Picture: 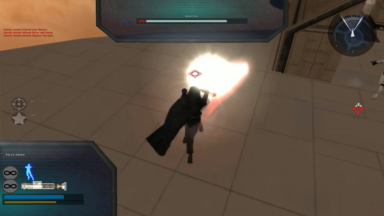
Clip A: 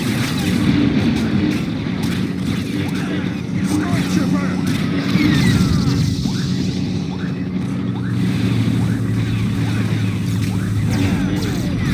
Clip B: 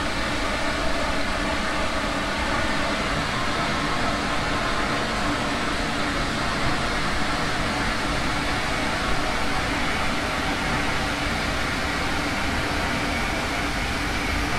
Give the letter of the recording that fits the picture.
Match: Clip A